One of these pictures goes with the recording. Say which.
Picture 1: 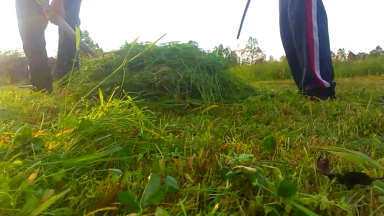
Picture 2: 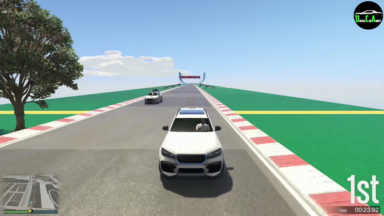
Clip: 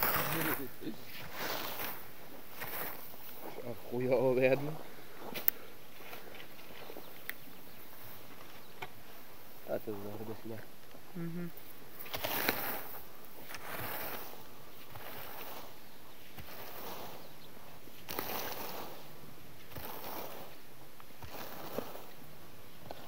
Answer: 1